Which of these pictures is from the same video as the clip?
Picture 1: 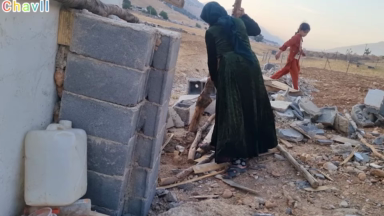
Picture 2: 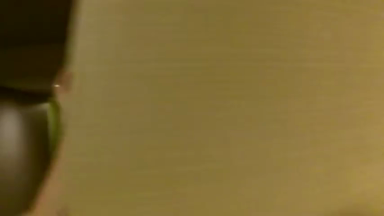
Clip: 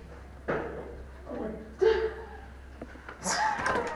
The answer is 2